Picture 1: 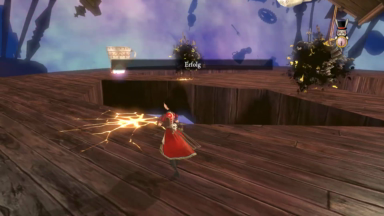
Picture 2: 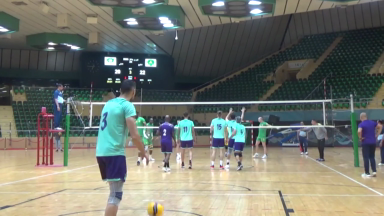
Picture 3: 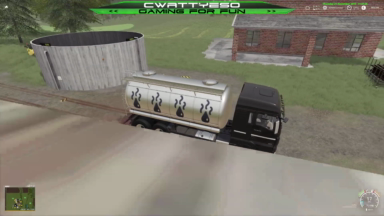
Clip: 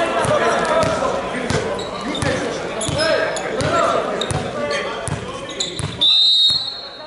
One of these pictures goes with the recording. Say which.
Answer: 2